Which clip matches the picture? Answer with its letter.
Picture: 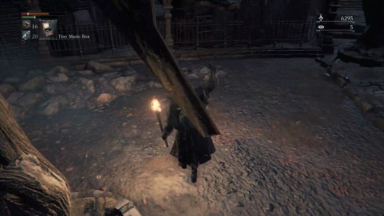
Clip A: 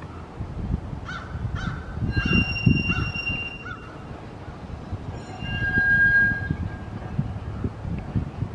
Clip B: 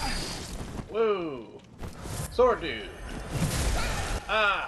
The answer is B